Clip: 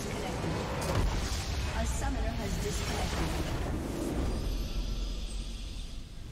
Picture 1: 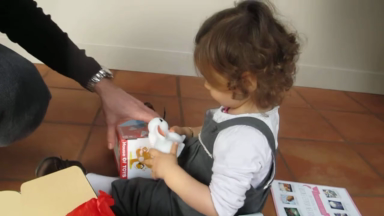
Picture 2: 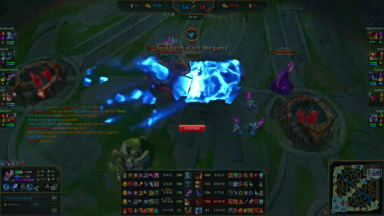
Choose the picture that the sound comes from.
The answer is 2